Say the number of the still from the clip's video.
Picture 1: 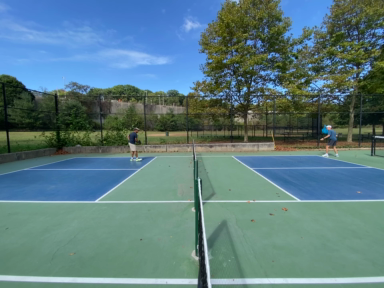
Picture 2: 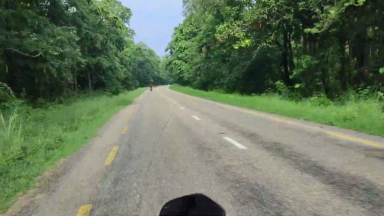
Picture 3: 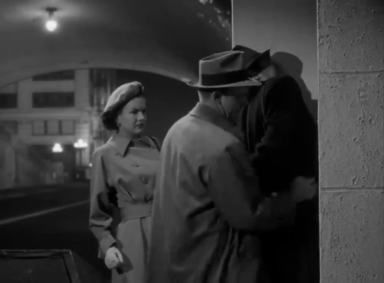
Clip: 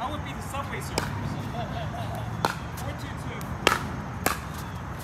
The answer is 1